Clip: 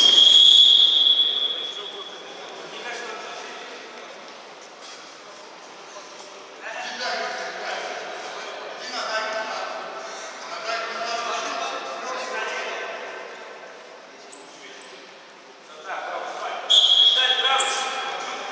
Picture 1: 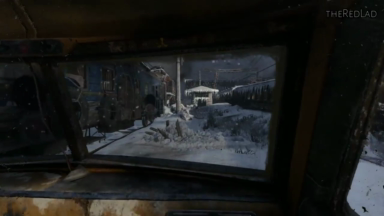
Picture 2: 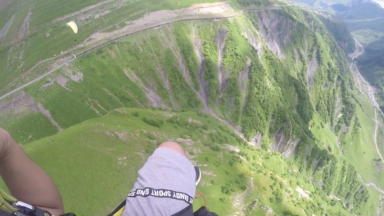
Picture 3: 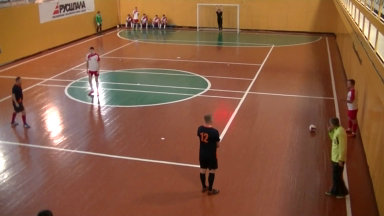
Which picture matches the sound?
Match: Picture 3